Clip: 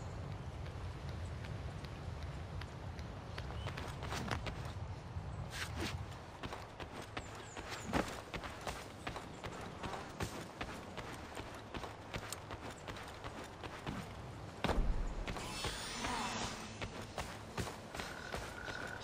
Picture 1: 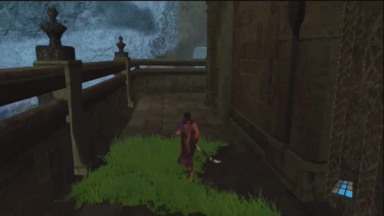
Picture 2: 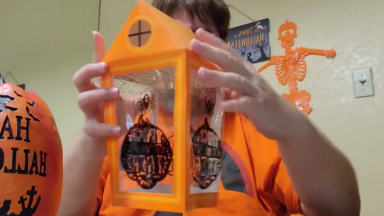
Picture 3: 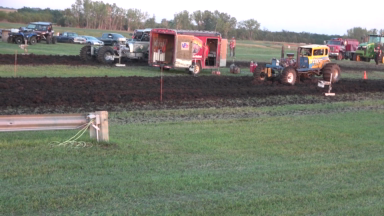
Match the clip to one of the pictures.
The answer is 1